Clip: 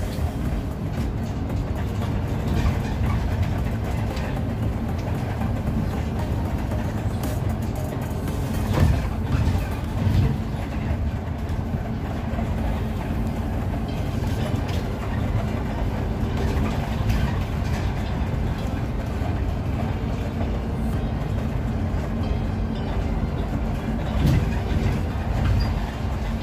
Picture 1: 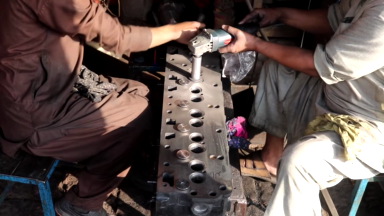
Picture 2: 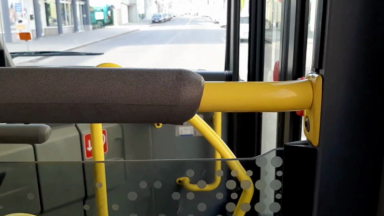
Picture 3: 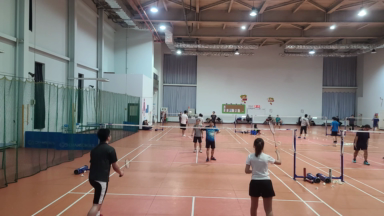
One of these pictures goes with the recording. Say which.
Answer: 2